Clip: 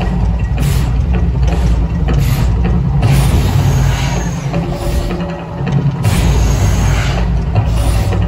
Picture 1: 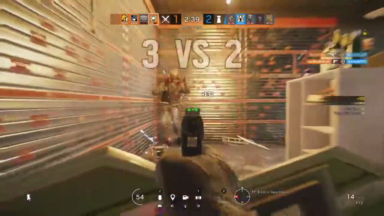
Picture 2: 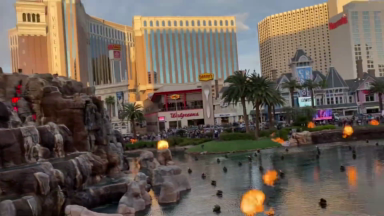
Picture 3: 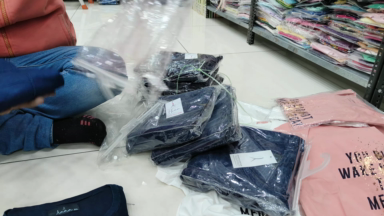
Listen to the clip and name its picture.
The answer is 2